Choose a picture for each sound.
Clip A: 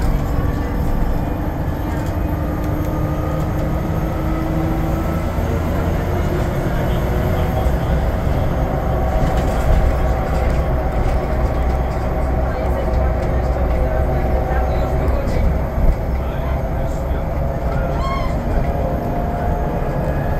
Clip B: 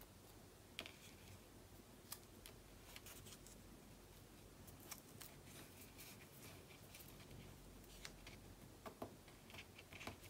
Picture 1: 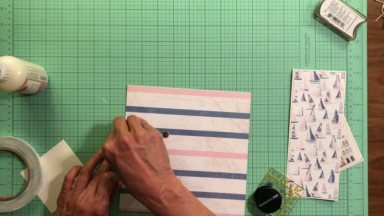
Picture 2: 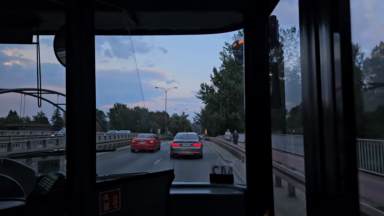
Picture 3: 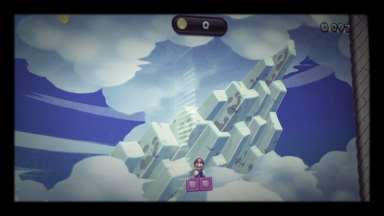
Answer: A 2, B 1